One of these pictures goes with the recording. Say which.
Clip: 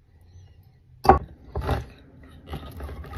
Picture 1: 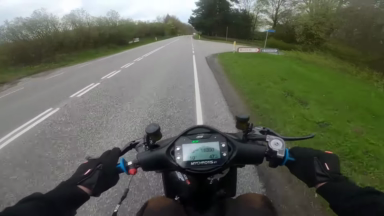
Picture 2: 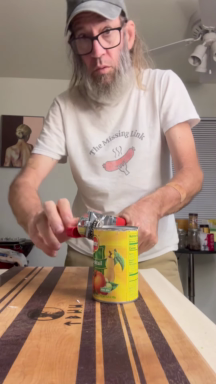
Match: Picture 2